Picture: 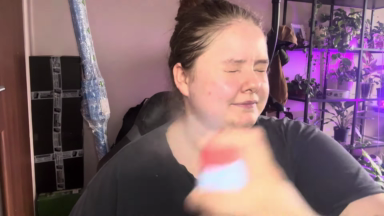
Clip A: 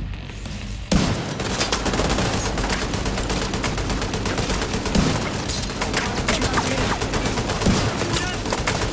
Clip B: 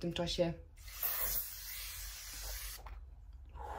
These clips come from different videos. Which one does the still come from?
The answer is B